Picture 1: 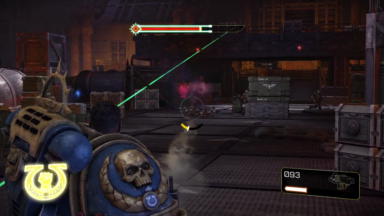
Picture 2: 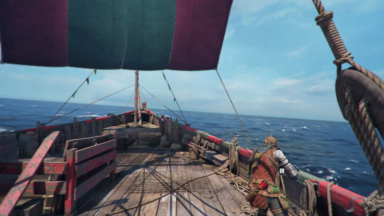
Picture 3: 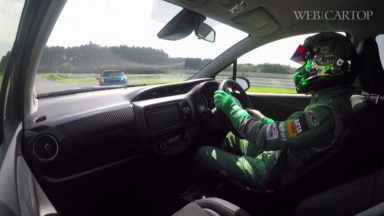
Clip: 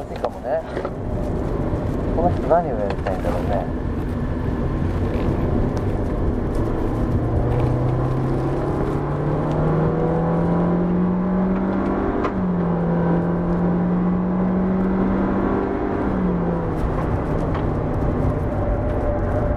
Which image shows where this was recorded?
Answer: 3